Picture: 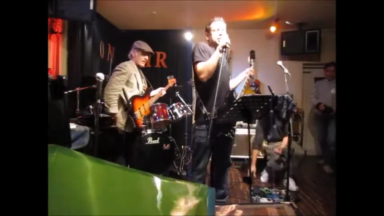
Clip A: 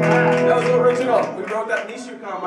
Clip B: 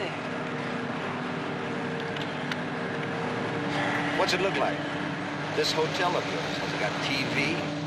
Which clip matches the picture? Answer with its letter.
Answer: A